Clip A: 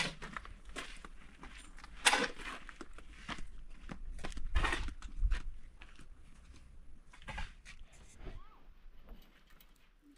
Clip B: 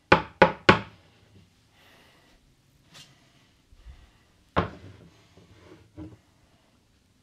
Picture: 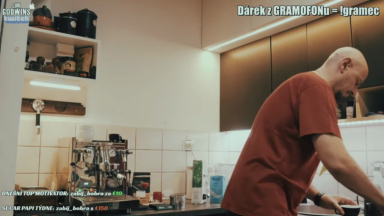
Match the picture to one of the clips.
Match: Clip B